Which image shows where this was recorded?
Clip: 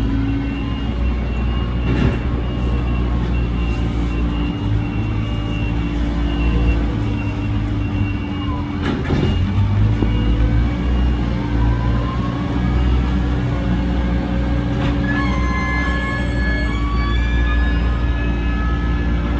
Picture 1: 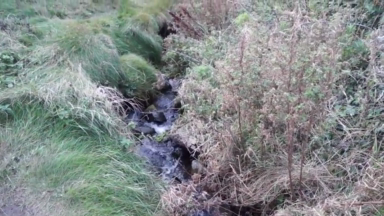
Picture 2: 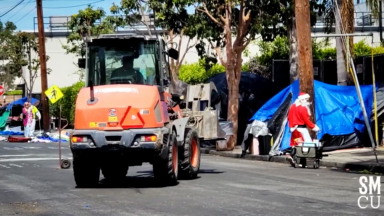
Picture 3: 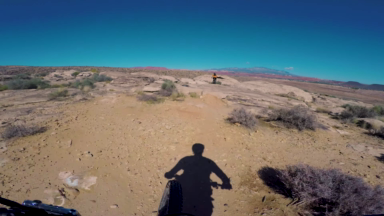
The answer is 2